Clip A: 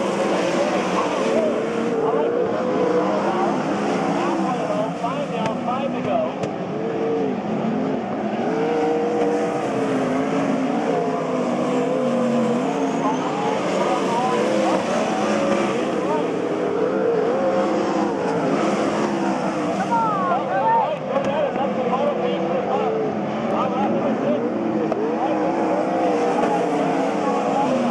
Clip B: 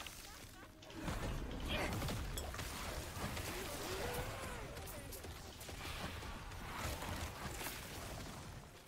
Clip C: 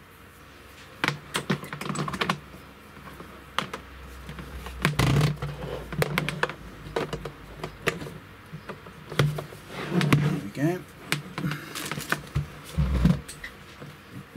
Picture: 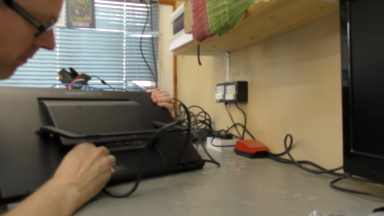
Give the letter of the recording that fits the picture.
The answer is C